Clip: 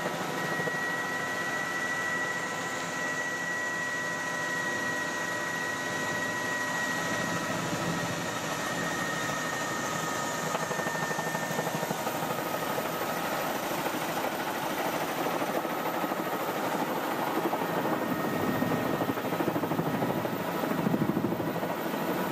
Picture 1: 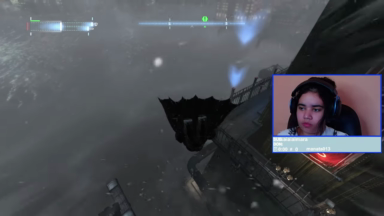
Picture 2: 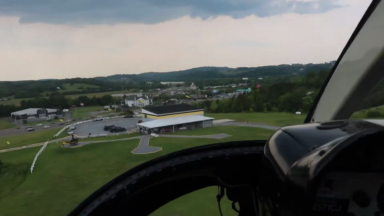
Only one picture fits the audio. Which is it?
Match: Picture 2